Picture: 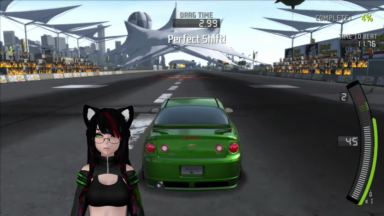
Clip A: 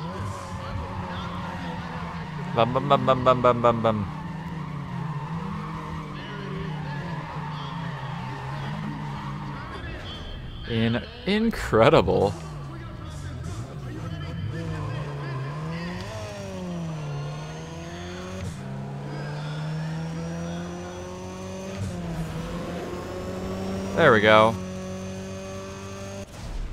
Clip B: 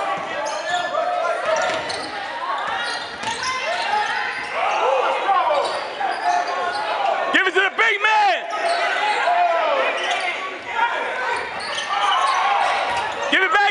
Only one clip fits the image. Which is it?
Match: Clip A